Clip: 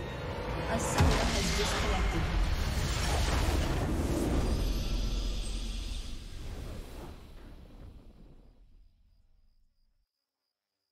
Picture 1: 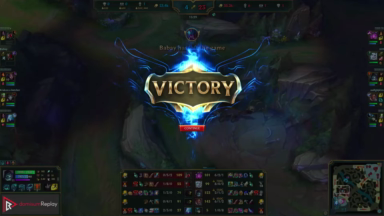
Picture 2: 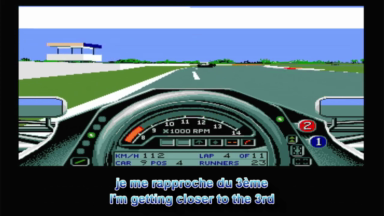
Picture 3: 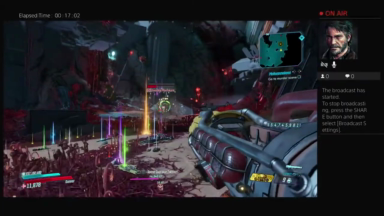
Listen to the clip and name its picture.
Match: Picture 1